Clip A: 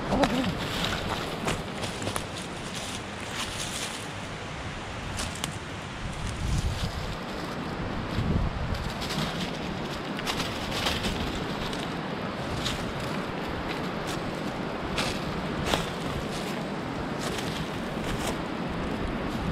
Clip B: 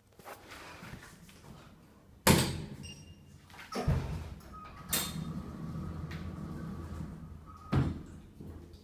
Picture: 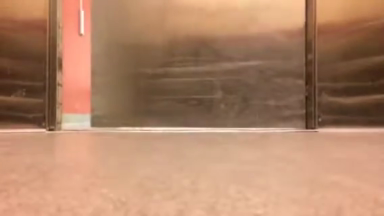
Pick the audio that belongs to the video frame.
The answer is B